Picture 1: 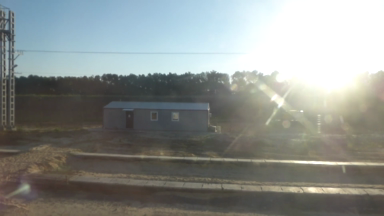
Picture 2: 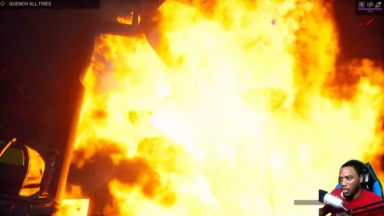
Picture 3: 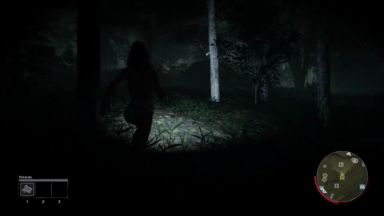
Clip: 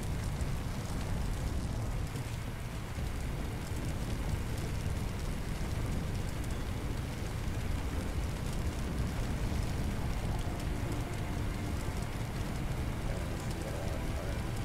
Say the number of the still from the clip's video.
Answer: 2